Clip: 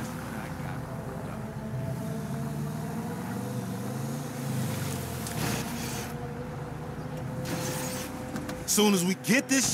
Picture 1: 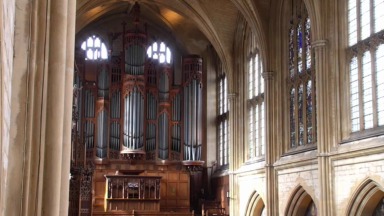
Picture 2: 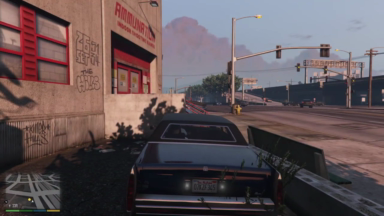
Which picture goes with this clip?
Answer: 2